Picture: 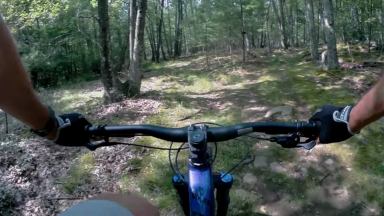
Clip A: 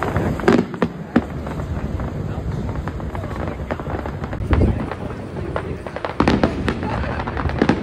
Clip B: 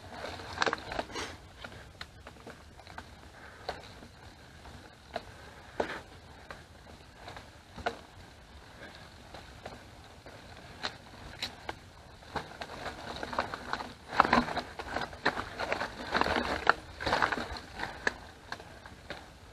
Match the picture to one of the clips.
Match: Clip B